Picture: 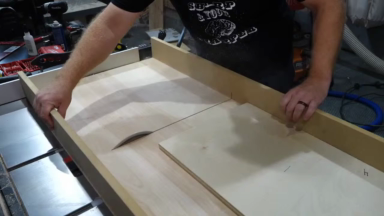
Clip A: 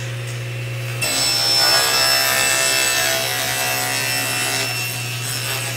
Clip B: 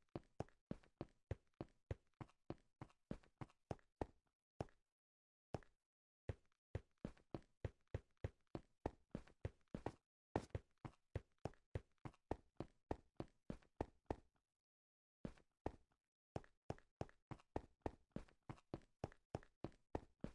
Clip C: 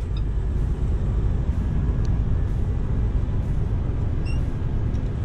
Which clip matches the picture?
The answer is A